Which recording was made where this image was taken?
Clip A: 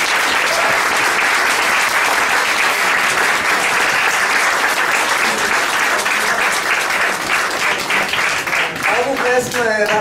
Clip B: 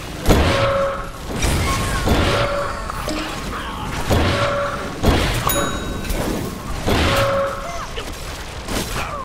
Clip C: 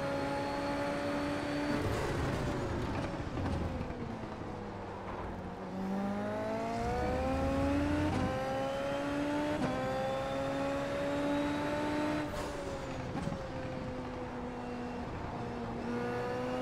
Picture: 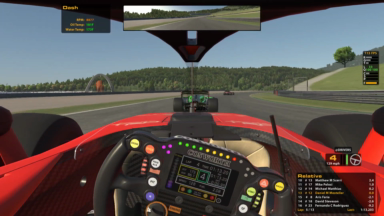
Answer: C